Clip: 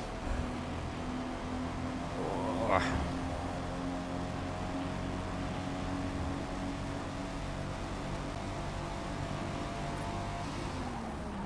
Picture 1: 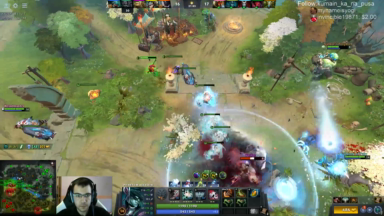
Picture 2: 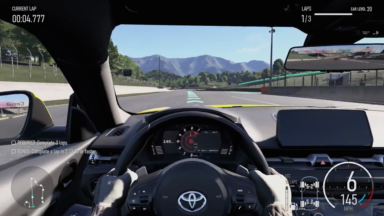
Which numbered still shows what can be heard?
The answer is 2